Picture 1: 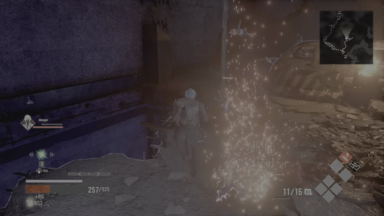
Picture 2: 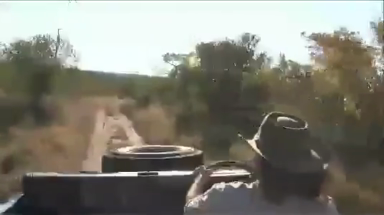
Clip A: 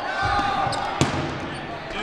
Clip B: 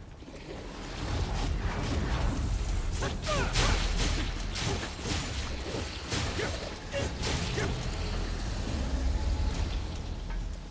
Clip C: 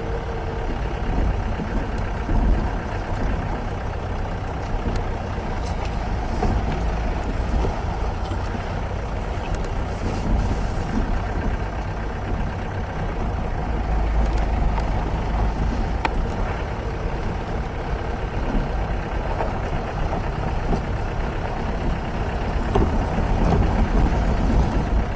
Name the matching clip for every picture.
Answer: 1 B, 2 C